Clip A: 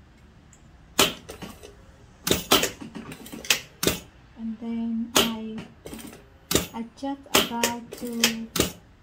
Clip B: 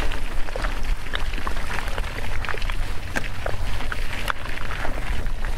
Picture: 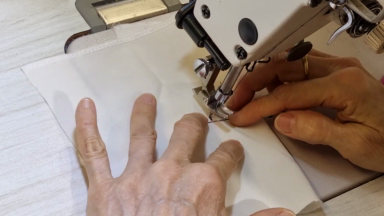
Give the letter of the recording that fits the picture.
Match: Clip A